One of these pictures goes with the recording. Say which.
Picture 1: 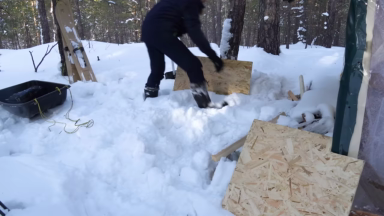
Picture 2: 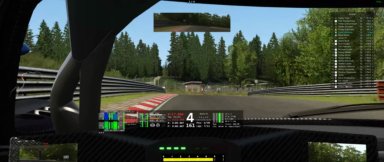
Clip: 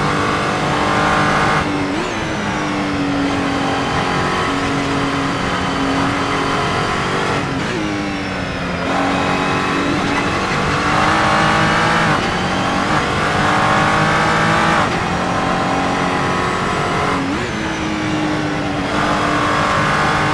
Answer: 2